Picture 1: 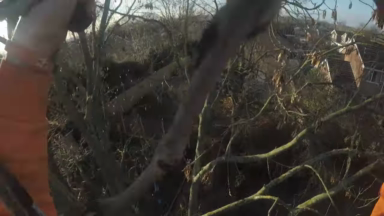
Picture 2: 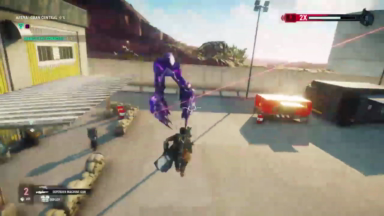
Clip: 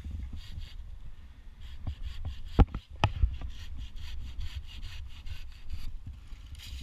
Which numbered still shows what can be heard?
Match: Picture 1